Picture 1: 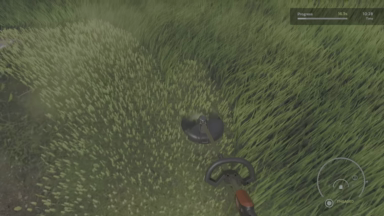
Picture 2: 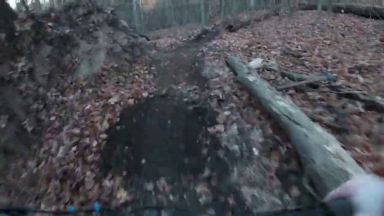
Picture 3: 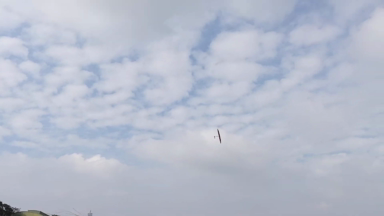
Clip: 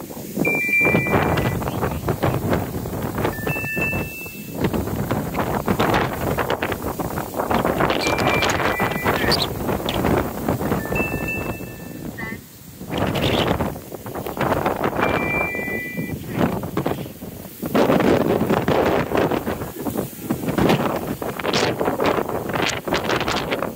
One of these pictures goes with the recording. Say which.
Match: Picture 3